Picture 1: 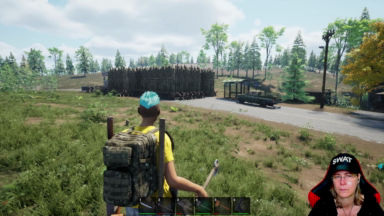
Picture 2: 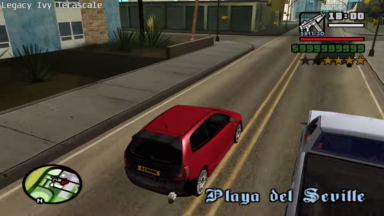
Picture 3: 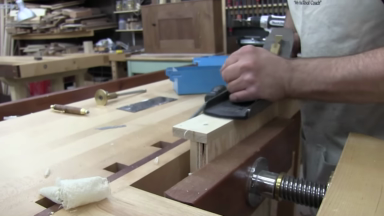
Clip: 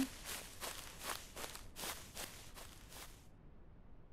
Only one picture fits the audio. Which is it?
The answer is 1